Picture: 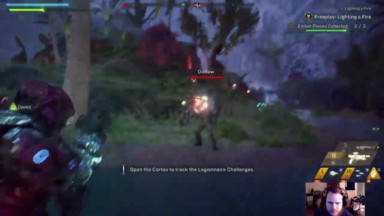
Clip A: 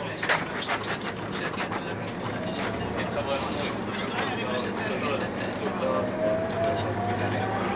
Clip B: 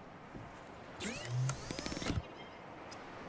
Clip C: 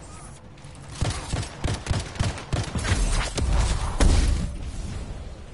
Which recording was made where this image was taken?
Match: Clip C